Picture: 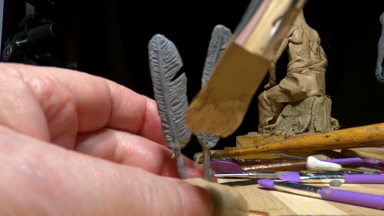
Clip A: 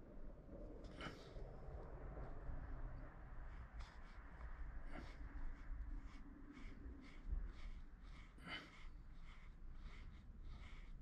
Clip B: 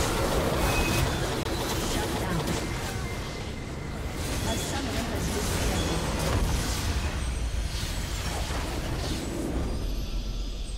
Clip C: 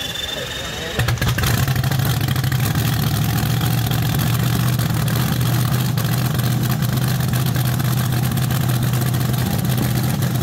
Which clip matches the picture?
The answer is A